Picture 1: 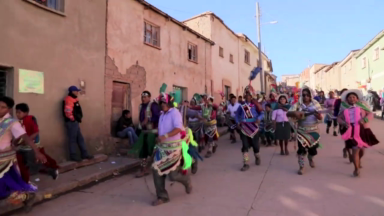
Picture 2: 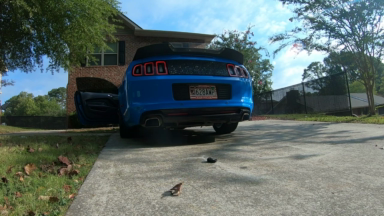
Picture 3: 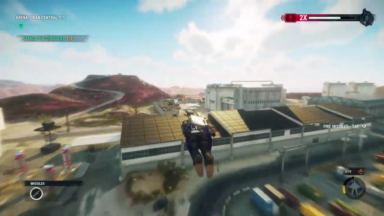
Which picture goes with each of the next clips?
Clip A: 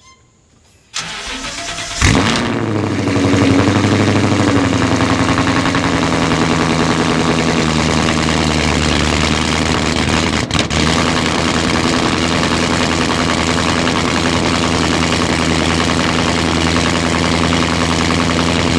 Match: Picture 2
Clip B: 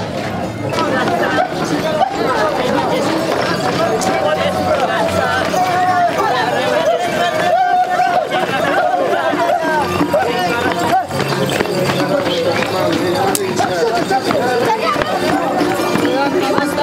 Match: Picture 1